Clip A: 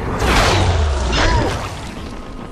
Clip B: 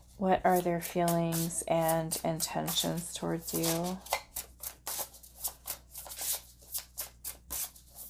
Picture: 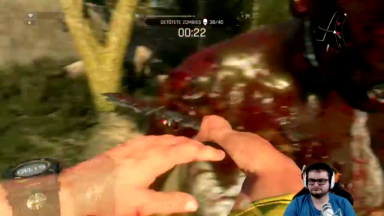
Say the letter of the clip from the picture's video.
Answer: A